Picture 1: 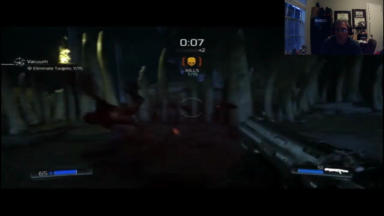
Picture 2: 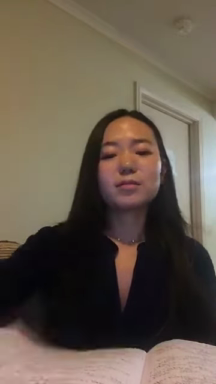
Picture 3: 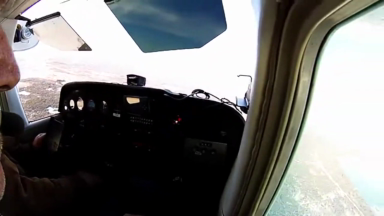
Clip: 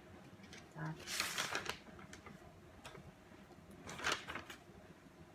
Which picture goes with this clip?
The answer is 2